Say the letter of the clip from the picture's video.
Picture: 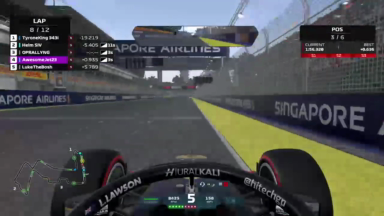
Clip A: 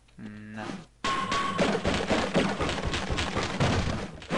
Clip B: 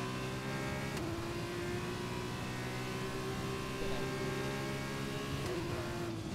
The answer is B